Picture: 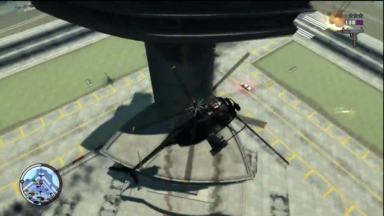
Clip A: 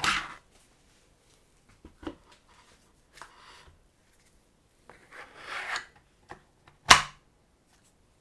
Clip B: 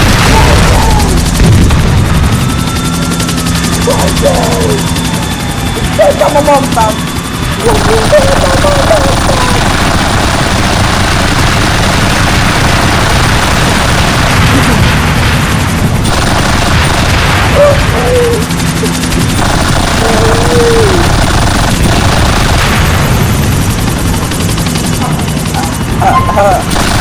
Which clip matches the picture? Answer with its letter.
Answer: B